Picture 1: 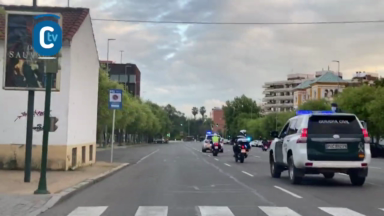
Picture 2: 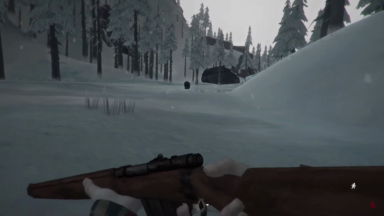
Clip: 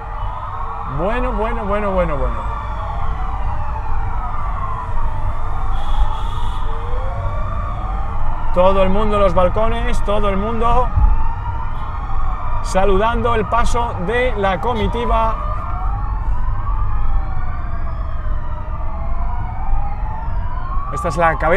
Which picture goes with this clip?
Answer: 1